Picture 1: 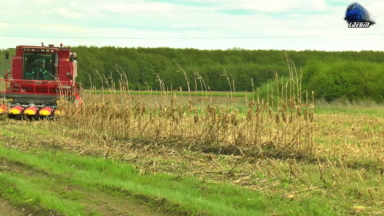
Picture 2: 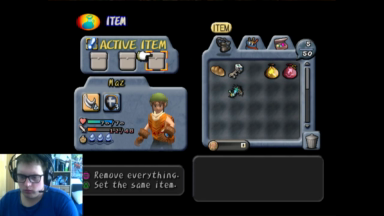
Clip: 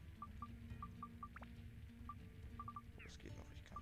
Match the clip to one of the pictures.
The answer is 2